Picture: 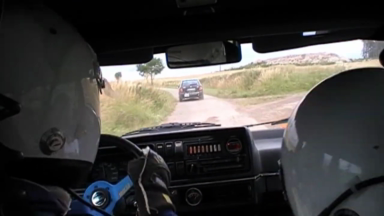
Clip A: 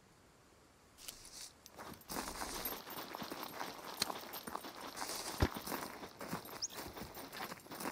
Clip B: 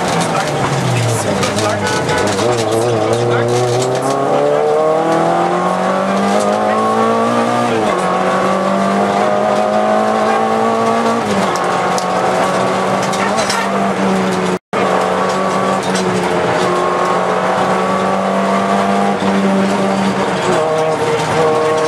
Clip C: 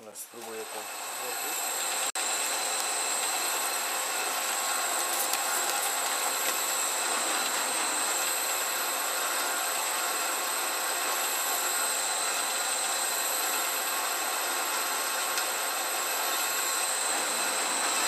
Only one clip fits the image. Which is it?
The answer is B